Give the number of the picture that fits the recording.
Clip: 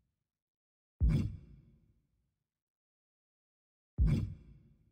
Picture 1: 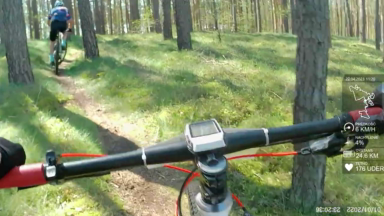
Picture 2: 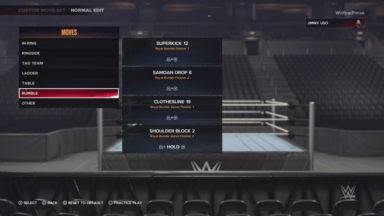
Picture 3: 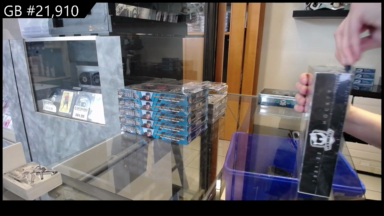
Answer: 2